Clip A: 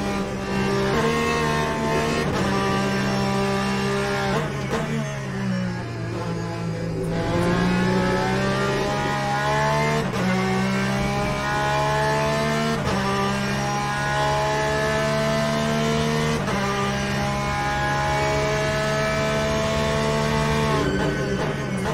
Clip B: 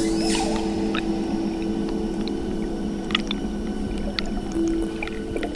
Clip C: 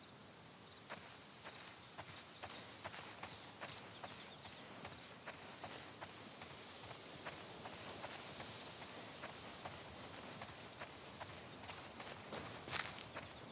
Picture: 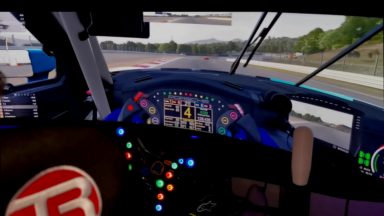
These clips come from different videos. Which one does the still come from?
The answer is A